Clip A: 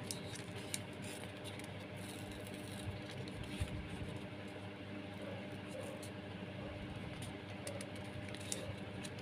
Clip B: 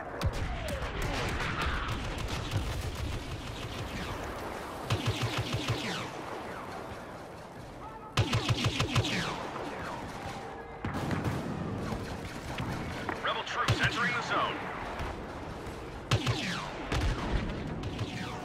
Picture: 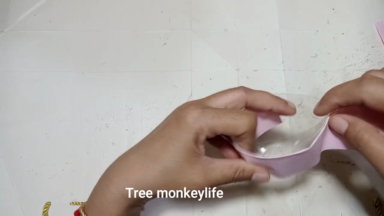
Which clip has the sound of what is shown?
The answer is A